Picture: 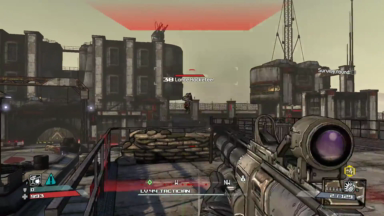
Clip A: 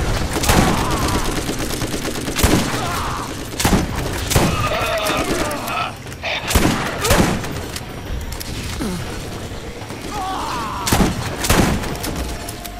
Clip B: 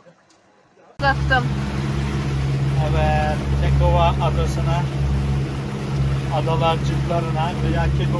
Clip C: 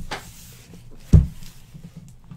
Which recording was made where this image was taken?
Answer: A